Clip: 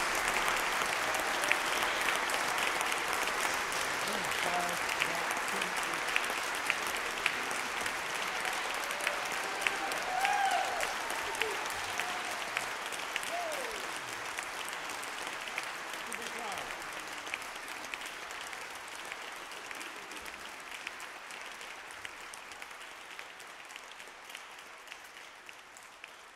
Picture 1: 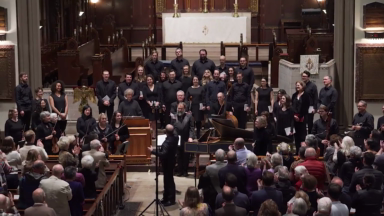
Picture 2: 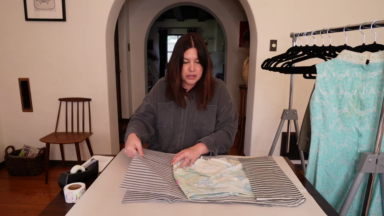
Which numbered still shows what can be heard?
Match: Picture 1